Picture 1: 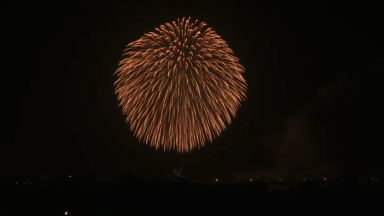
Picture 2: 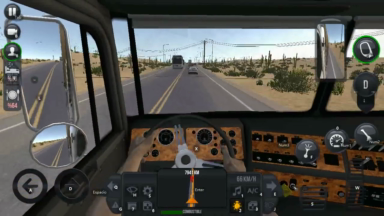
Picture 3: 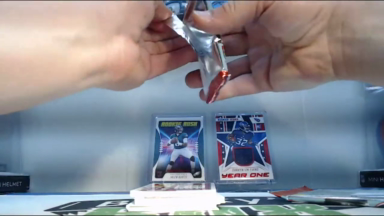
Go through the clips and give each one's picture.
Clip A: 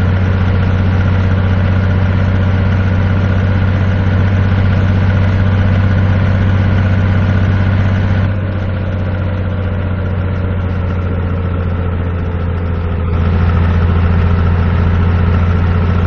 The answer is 2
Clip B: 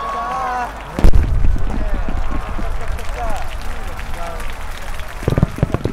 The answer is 1